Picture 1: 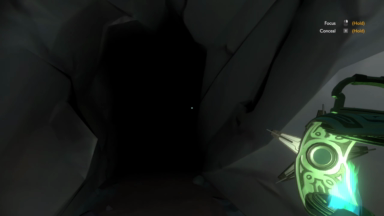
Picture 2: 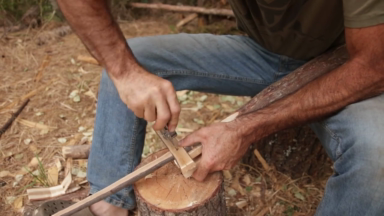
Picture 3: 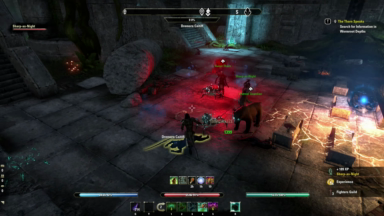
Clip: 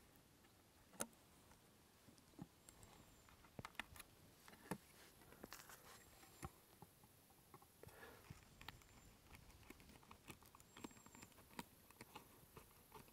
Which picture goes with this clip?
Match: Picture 2